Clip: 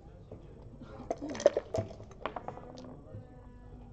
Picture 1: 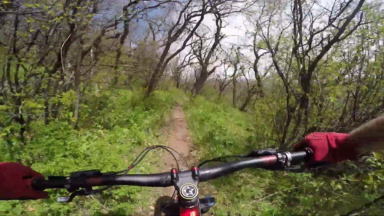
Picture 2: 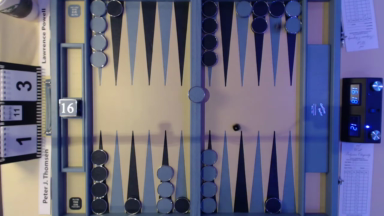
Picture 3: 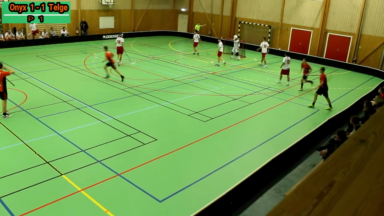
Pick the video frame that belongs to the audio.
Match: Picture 2